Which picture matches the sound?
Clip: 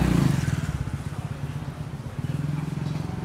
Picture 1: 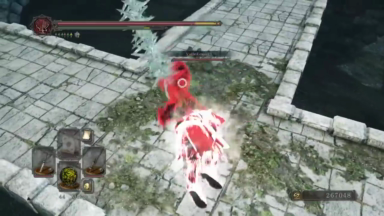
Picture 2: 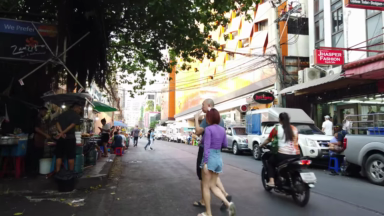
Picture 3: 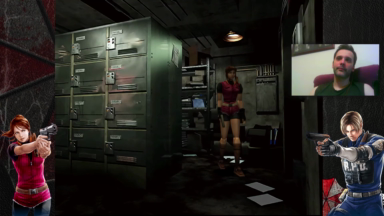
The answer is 2